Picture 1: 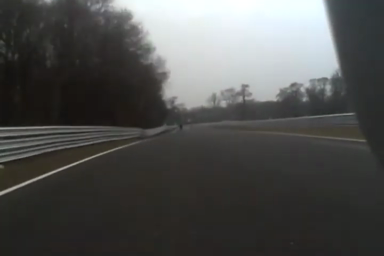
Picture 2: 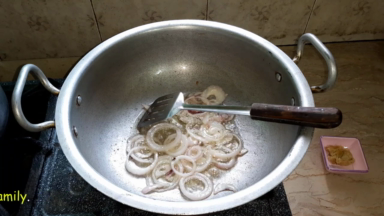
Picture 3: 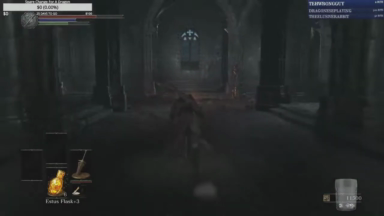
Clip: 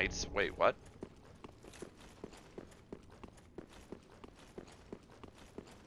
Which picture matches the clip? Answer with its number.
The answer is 3